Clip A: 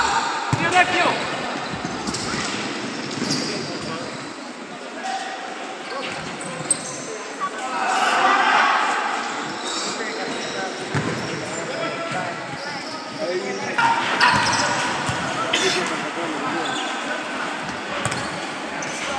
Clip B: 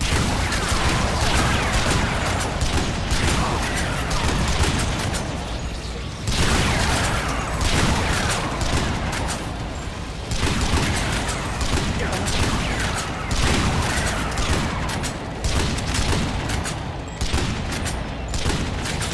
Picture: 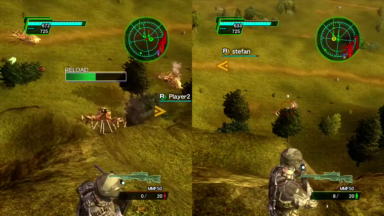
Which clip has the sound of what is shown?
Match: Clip B